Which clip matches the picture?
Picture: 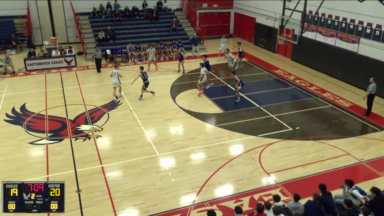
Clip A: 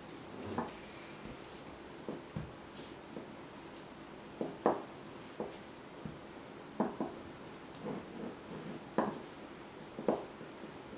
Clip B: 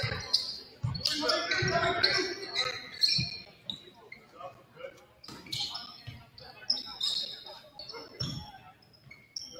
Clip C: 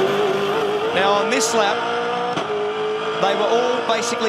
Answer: B